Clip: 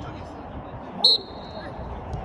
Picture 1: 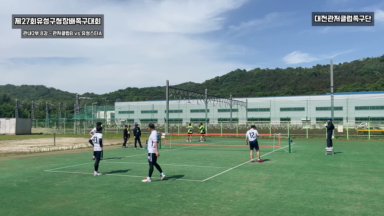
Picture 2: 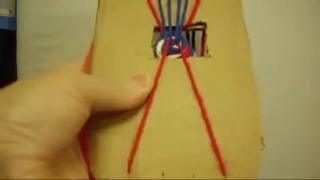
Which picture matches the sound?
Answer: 1